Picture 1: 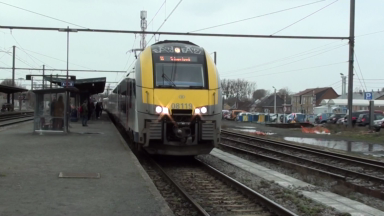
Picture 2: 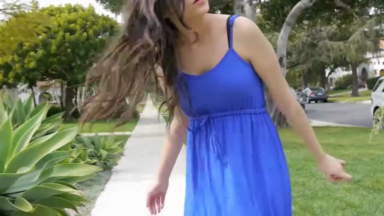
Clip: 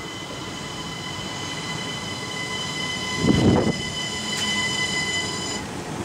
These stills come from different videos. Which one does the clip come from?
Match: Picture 1